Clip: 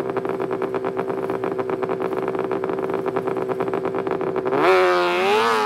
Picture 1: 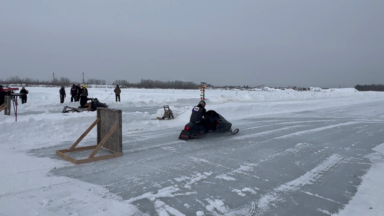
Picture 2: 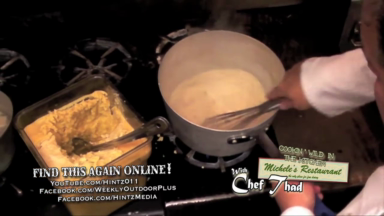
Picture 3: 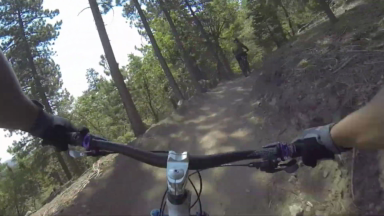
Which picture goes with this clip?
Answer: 1